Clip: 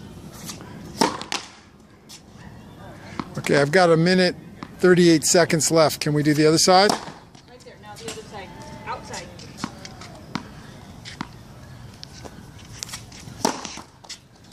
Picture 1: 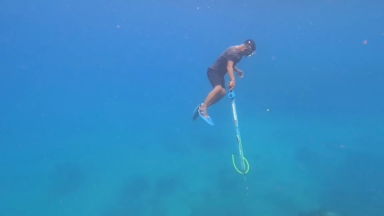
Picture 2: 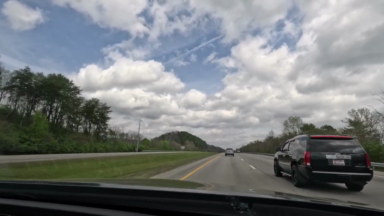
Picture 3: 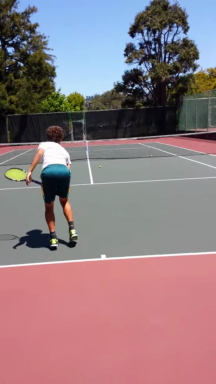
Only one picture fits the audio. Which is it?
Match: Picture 3